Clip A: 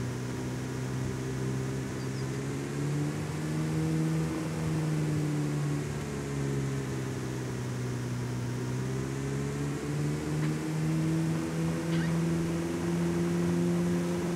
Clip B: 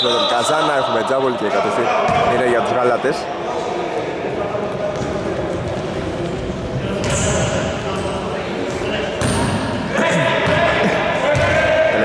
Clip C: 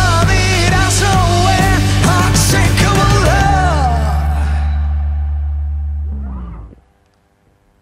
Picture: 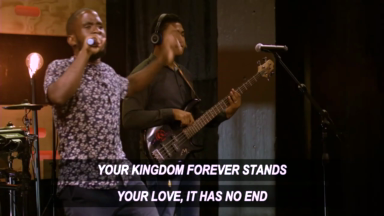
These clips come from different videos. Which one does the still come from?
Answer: C